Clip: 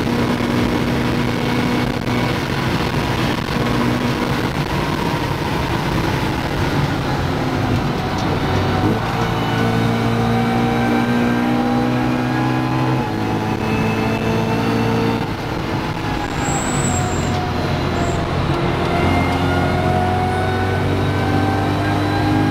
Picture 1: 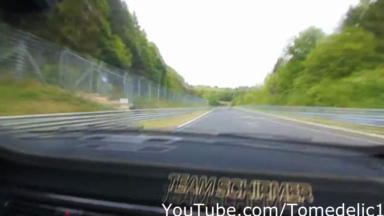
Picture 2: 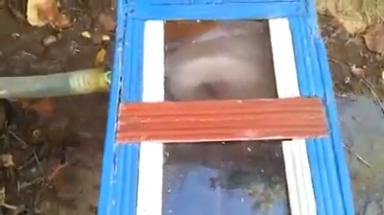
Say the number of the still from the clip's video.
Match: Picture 1